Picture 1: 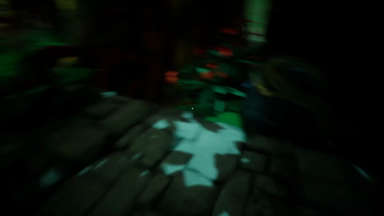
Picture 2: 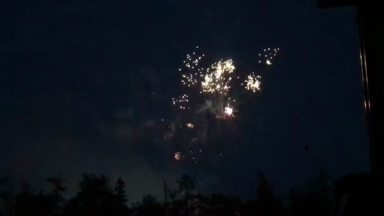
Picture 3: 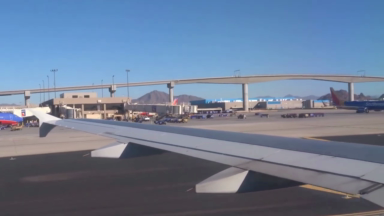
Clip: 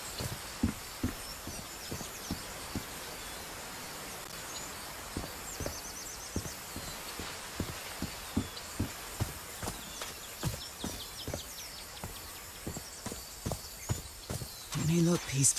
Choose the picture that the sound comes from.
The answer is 1